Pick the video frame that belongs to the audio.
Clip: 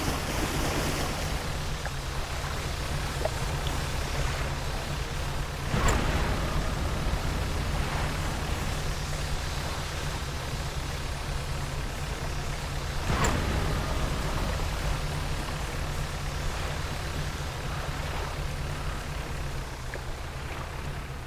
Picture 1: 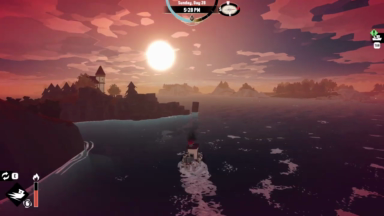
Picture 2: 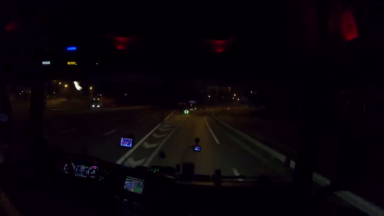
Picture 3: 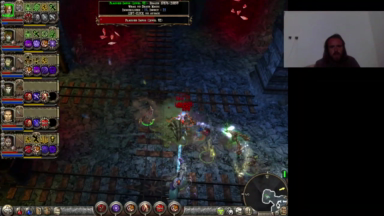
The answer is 1